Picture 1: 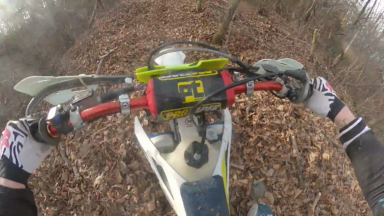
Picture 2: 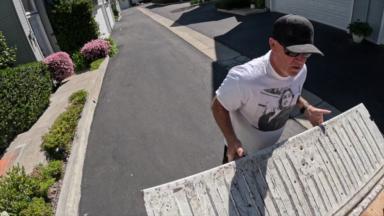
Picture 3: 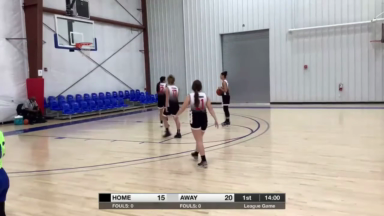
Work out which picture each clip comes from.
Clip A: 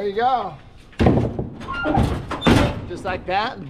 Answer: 2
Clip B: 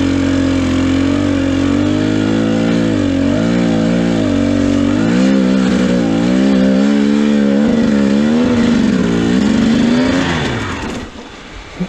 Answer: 1